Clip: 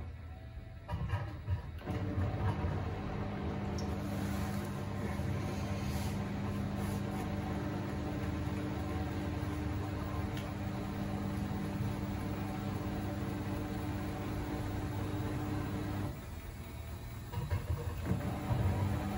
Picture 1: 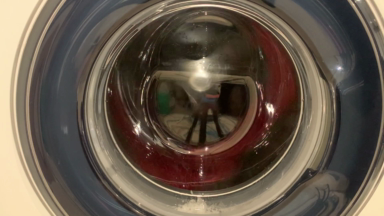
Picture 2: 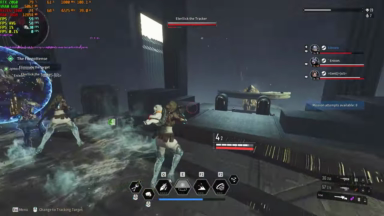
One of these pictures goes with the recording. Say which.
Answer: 1